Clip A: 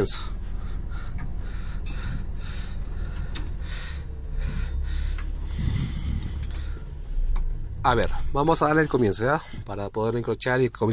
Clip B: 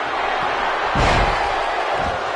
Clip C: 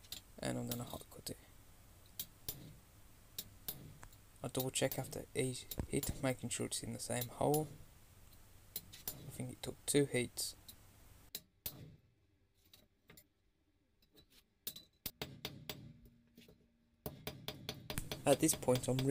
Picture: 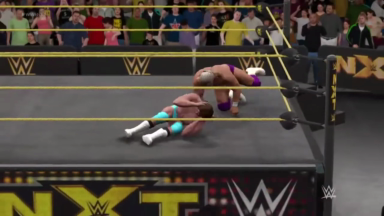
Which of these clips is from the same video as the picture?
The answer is B